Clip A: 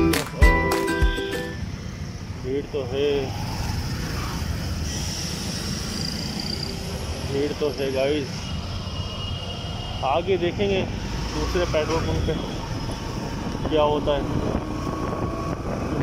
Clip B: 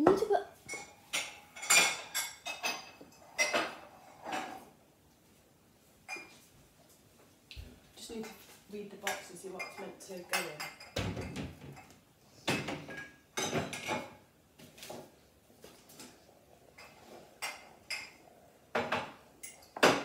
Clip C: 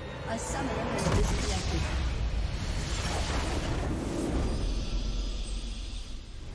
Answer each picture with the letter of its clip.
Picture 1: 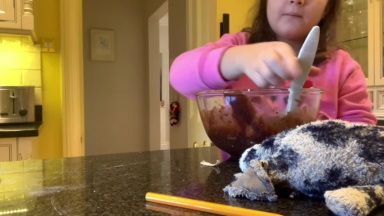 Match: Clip B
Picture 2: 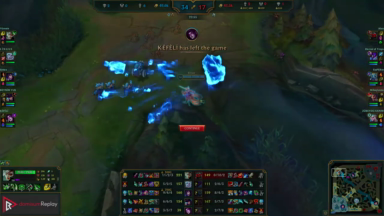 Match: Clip C